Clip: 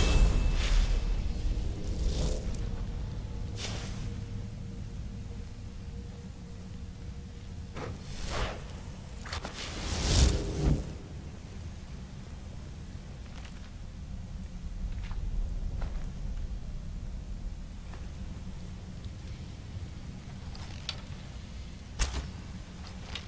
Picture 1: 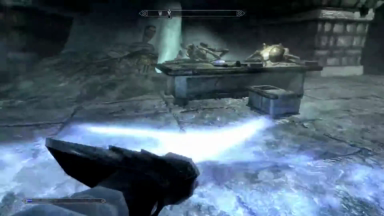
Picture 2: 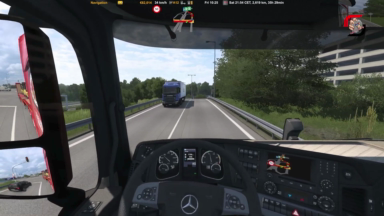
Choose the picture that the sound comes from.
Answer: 1